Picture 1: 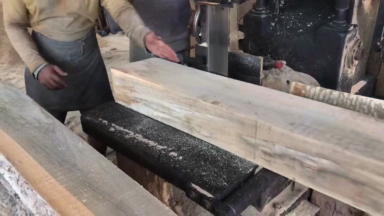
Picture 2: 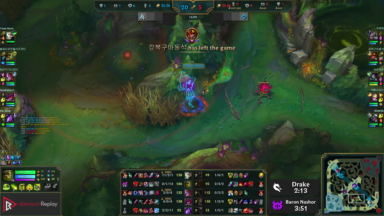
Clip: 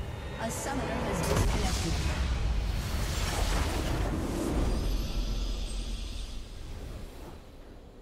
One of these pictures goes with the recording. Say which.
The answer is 2